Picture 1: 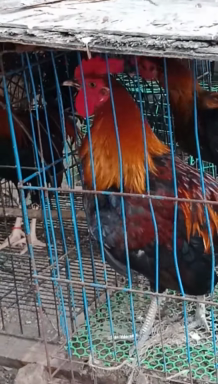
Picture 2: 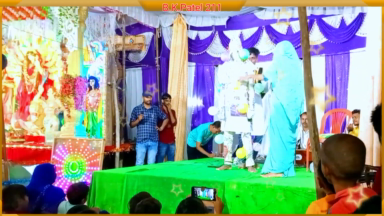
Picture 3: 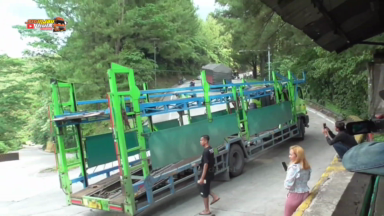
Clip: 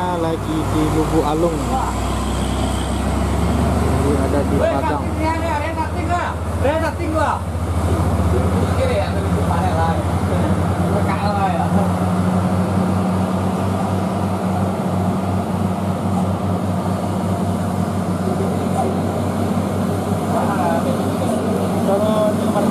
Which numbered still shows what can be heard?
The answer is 3